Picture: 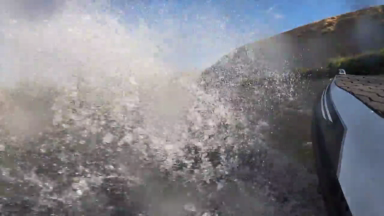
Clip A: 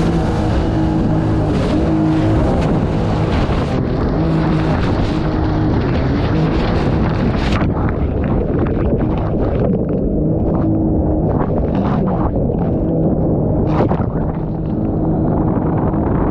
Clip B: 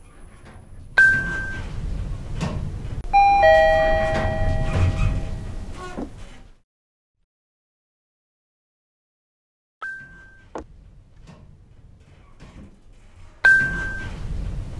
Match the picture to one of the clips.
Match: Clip A